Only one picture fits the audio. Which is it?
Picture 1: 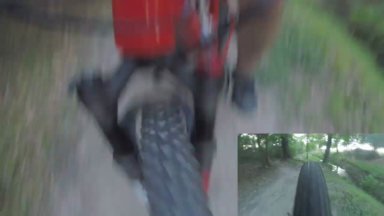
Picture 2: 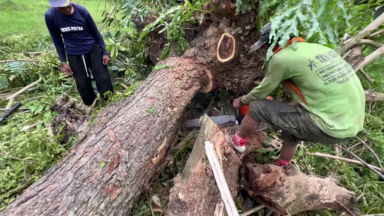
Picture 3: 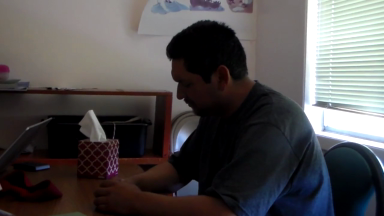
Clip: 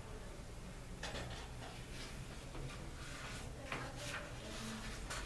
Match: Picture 3